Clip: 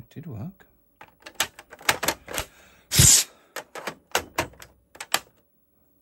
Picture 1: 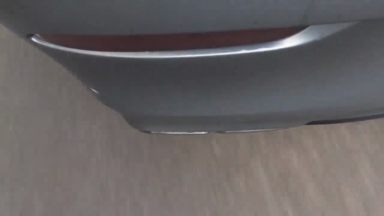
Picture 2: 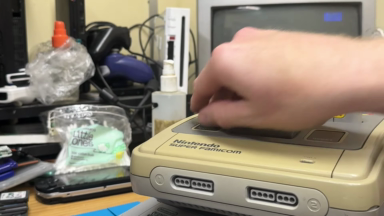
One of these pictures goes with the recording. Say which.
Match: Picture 2